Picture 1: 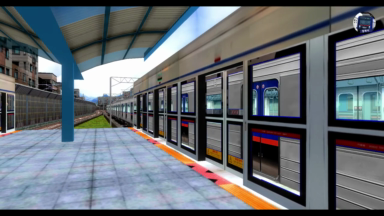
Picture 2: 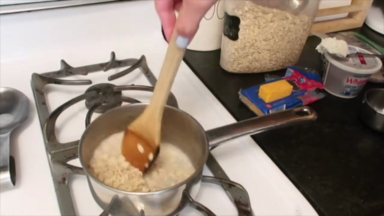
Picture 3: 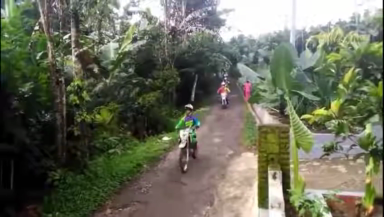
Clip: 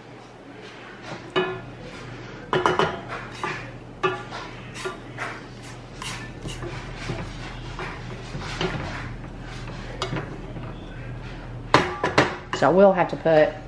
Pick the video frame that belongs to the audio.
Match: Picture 2